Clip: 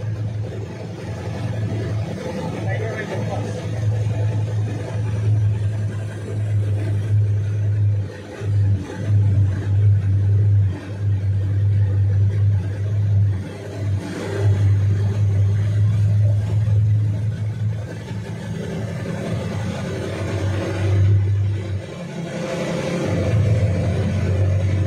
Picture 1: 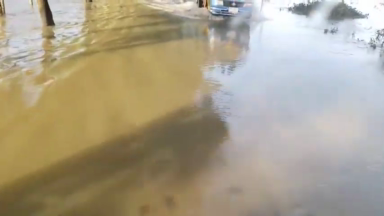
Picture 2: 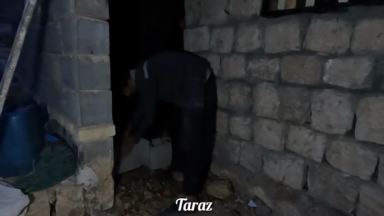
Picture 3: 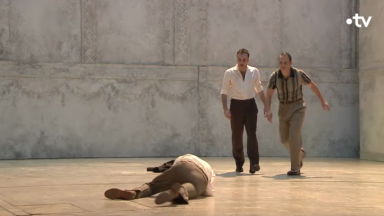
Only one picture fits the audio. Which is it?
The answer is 1